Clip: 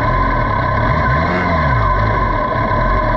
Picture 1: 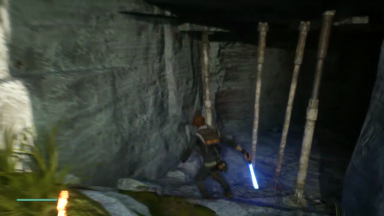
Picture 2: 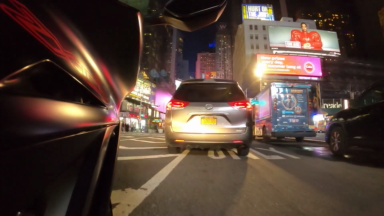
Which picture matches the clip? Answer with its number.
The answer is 2